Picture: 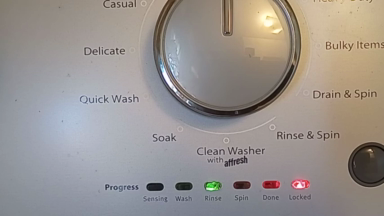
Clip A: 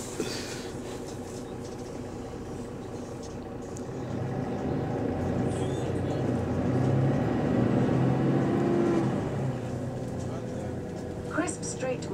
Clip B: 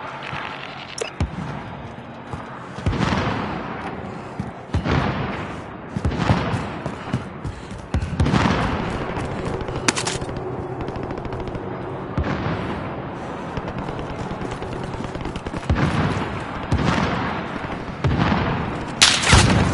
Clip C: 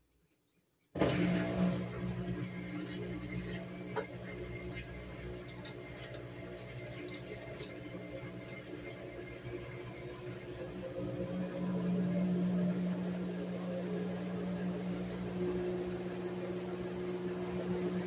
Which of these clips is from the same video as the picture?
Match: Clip C